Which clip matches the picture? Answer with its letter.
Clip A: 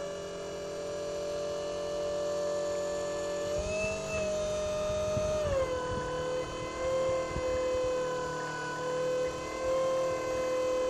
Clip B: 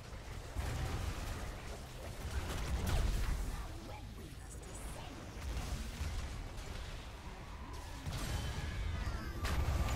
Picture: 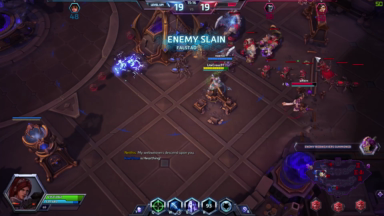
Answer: B